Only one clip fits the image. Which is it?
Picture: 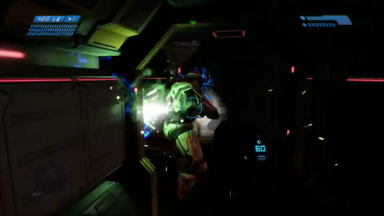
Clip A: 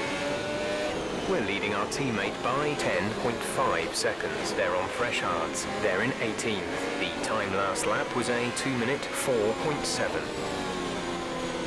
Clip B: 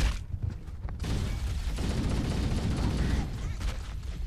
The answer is B